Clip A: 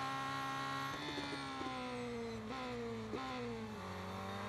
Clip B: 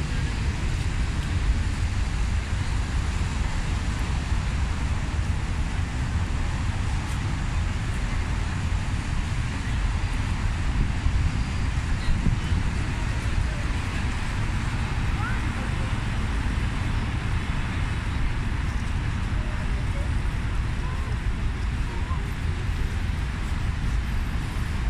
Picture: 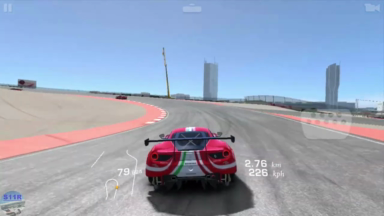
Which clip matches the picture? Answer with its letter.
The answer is A